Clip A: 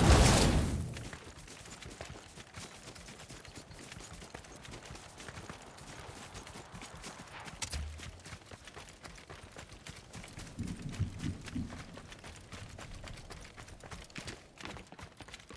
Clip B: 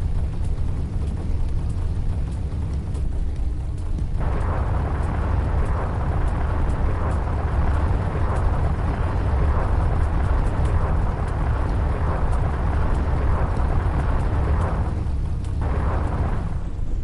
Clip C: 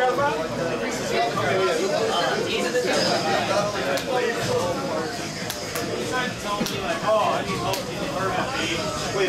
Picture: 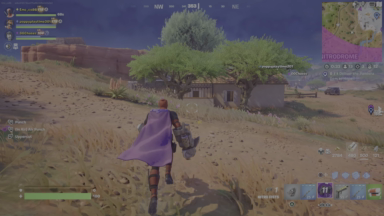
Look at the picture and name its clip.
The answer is A